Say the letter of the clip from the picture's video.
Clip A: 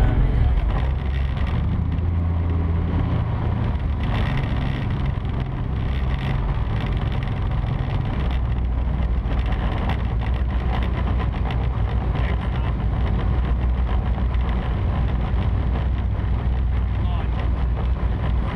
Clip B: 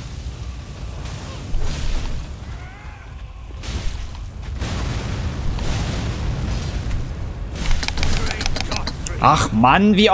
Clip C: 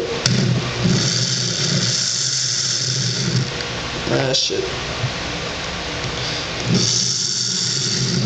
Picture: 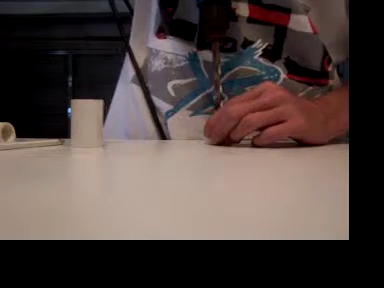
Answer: C